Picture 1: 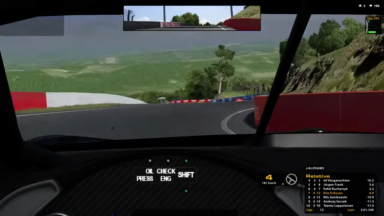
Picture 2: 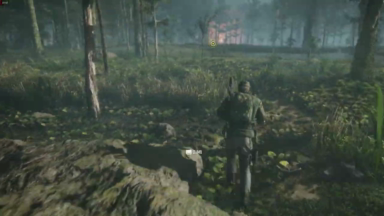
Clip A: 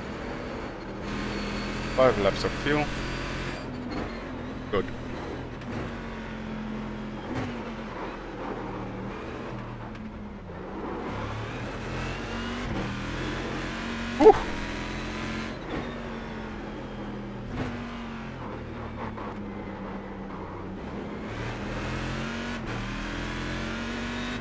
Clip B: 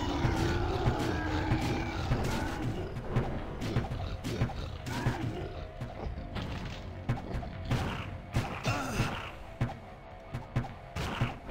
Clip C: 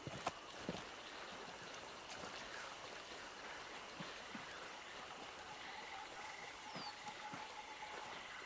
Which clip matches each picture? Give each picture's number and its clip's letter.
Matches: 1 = A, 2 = C